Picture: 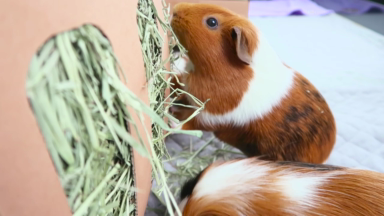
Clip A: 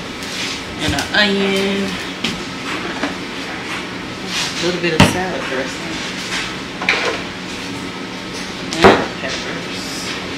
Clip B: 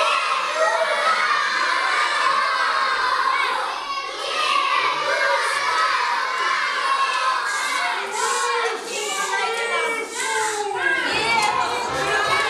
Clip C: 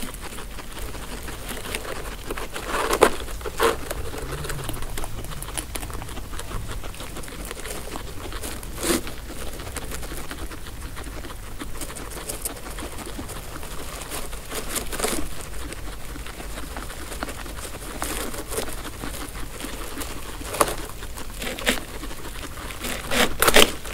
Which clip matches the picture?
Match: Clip C